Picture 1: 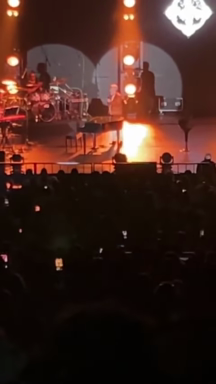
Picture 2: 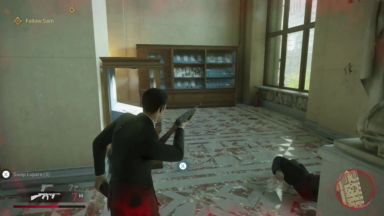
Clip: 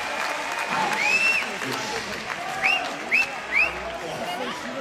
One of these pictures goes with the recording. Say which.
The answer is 1